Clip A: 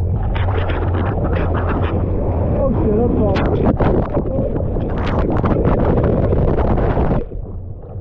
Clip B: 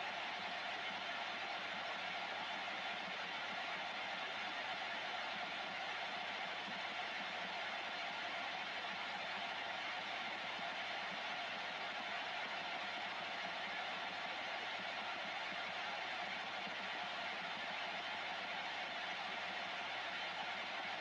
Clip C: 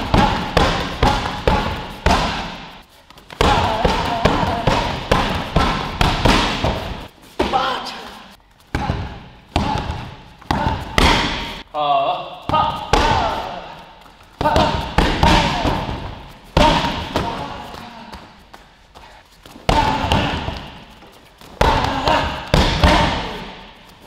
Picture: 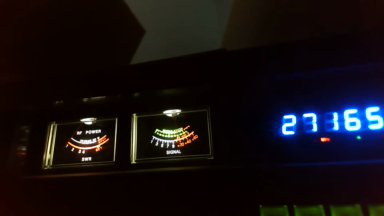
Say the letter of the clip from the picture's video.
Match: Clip B